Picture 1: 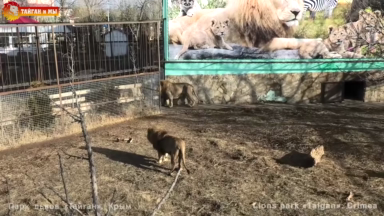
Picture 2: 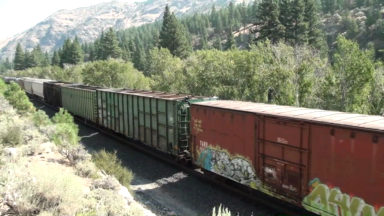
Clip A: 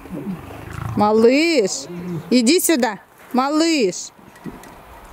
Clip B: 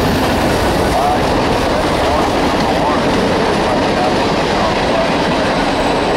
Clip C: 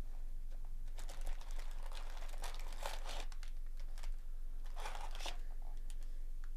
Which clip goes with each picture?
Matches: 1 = A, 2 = B